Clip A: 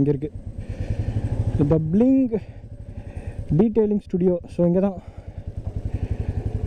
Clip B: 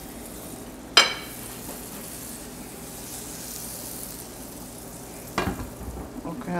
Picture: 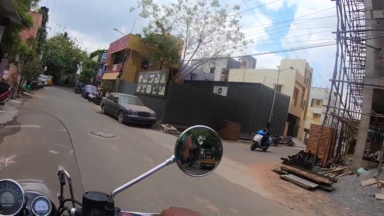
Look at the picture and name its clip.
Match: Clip A